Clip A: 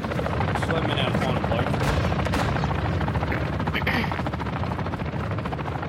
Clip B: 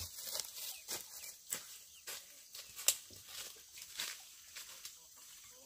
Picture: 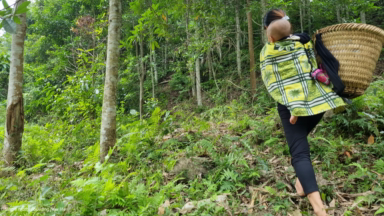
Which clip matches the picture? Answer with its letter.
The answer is B